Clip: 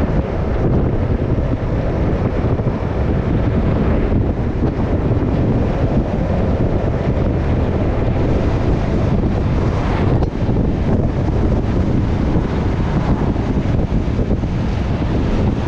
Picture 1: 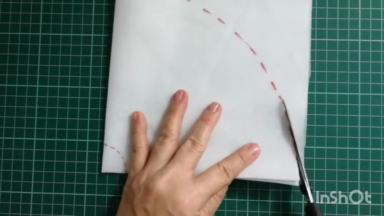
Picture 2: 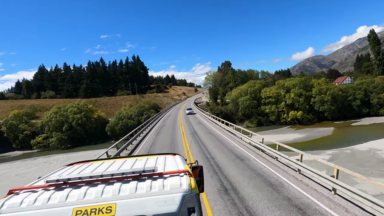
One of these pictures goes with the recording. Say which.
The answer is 2